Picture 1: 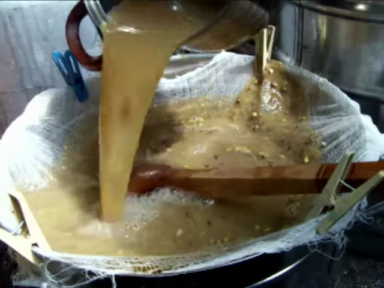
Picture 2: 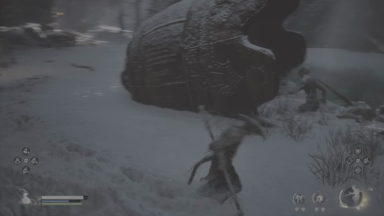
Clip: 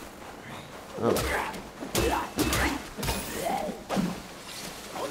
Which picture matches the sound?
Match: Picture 2